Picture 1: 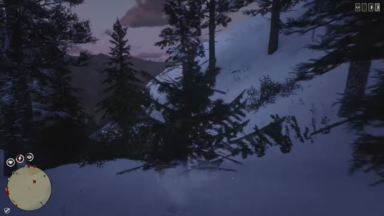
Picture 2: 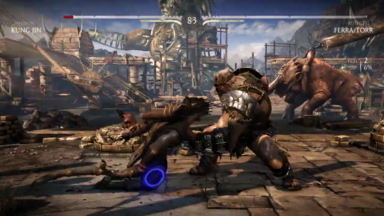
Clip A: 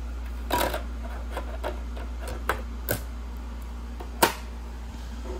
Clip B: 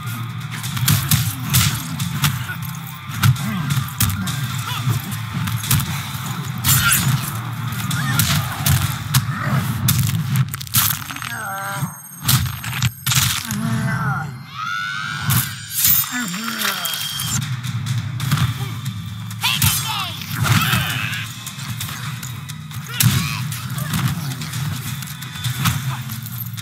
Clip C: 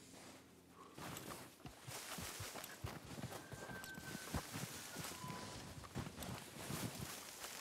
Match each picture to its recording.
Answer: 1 C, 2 B